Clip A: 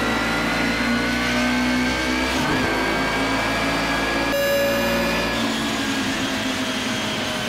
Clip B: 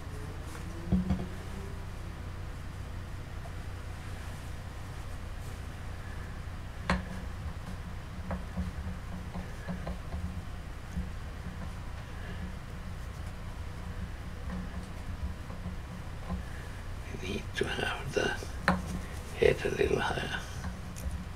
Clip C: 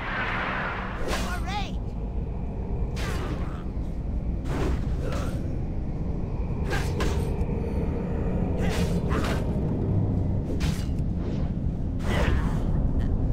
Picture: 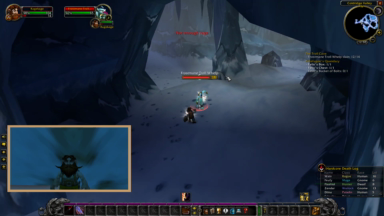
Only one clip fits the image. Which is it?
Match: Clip C